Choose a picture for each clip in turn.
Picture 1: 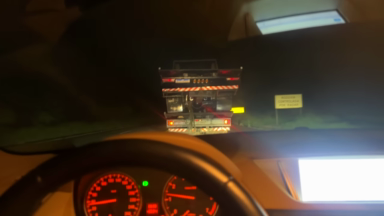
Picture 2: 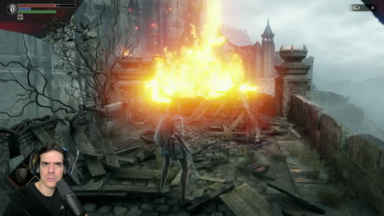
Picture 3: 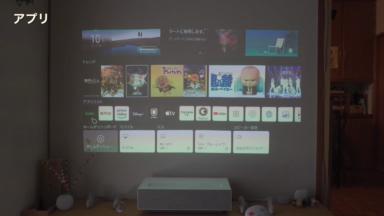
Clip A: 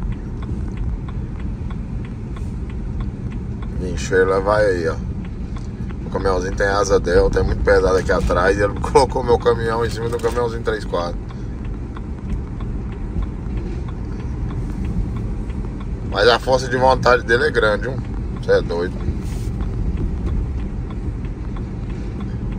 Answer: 1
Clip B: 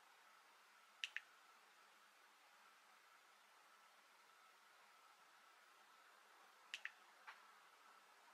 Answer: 3